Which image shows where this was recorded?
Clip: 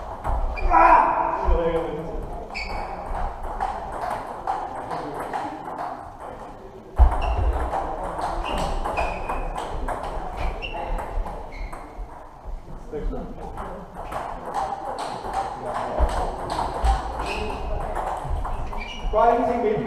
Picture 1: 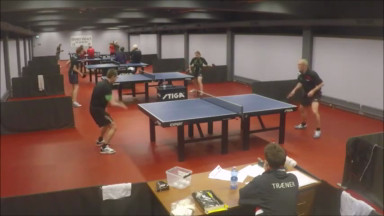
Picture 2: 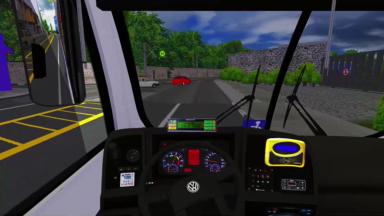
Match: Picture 1